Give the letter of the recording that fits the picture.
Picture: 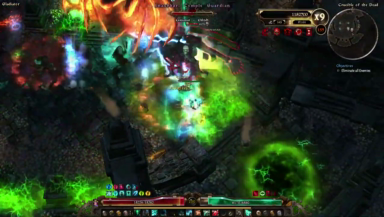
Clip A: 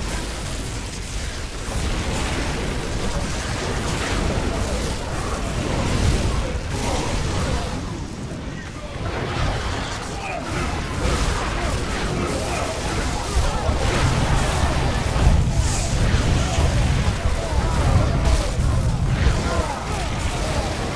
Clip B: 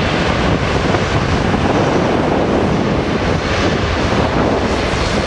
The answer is A